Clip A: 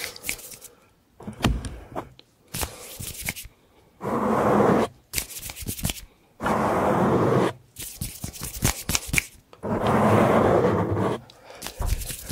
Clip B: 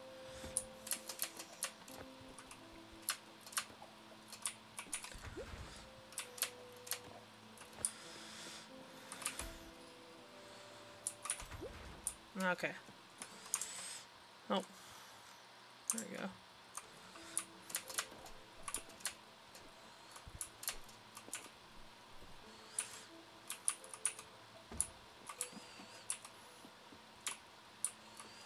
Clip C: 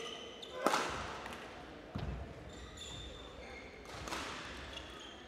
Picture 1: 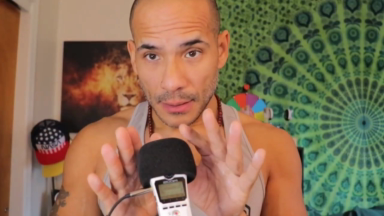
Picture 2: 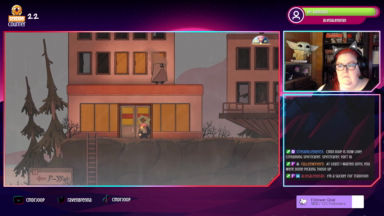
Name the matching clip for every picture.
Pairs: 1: A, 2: B